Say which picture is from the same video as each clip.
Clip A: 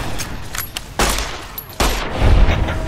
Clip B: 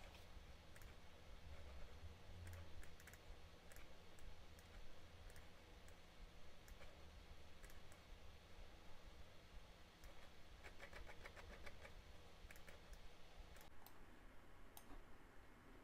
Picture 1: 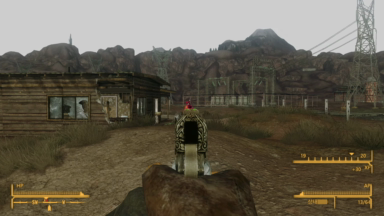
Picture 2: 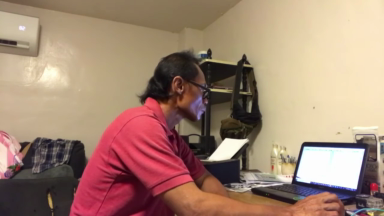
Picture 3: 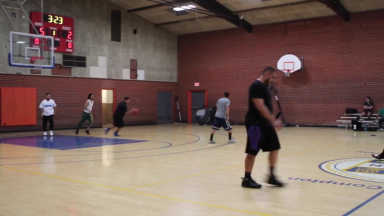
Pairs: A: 1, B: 2